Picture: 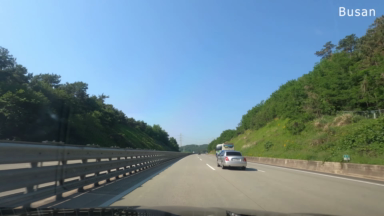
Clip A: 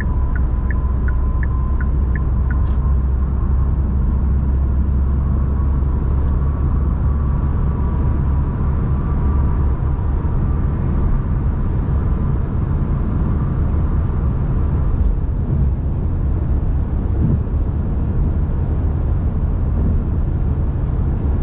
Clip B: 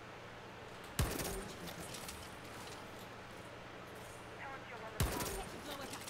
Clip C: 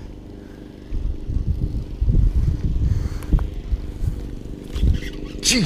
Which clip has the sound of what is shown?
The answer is A